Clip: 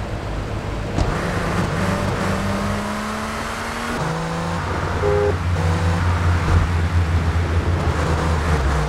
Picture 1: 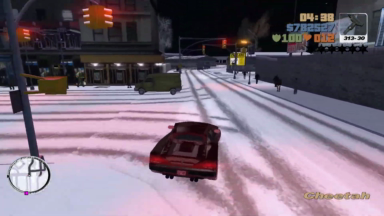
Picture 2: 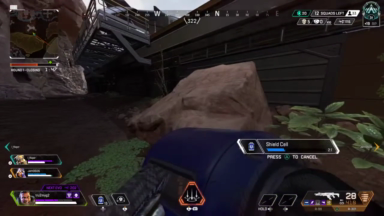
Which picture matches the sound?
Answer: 1